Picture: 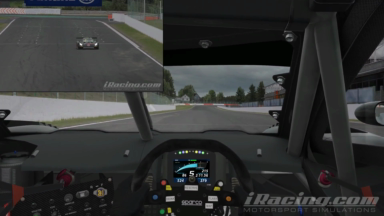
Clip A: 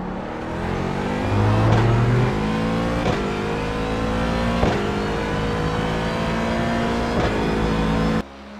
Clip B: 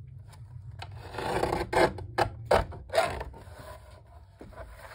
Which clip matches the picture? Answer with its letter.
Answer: A